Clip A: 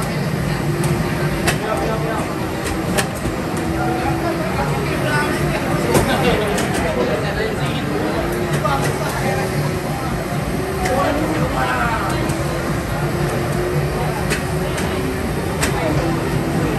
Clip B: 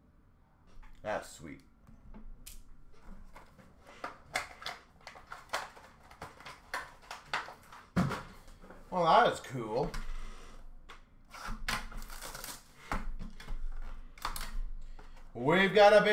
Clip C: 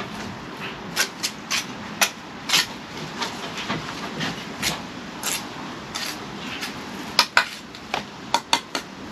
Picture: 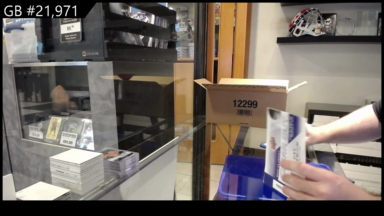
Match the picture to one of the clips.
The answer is B